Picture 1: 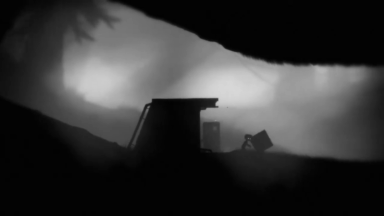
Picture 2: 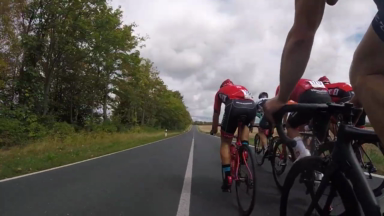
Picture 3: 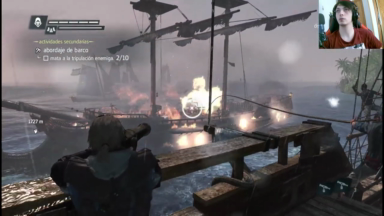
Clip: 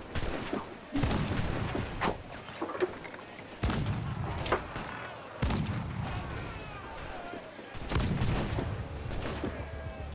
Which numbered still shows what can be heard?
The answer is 3